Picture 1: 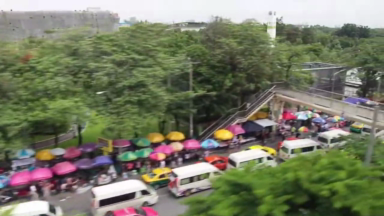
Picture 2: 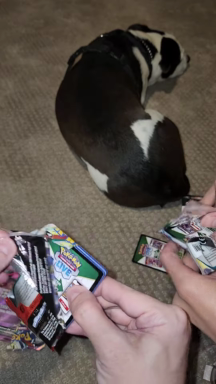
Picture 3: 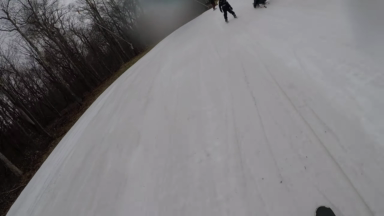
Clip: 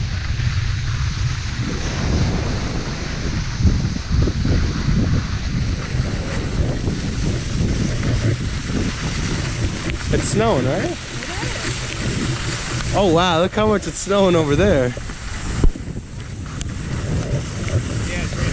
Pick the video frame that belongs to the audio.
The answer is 3